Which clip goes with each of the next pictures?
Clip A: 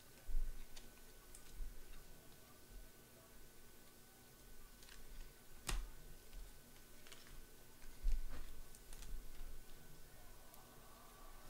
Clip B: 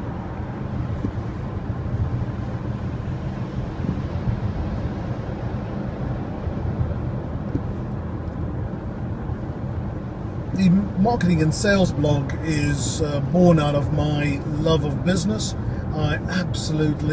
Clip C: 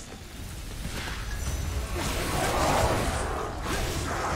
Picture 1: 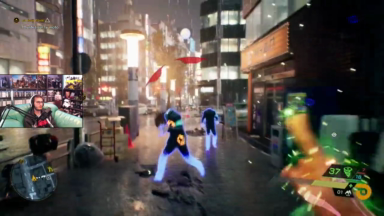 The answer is C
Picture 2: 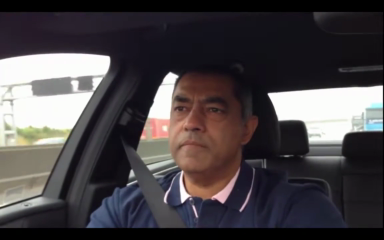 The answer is B